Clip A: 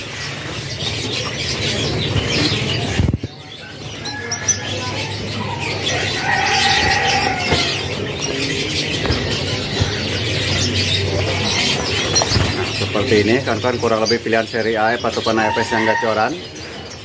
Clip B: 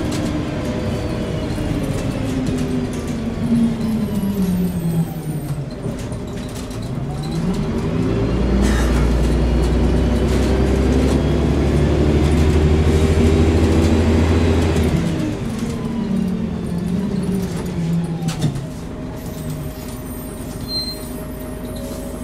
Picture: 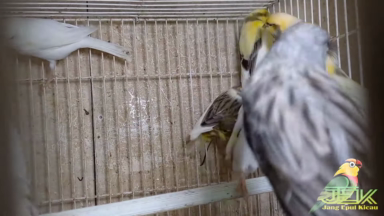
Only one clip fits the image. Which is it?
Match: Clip A